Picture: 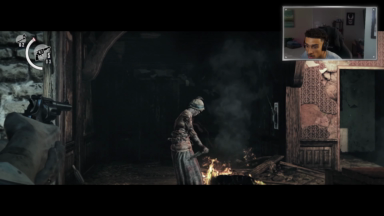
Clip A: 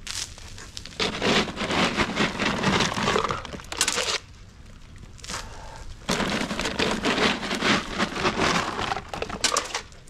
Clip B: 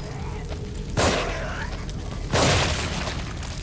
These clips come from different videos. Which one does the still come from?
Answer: B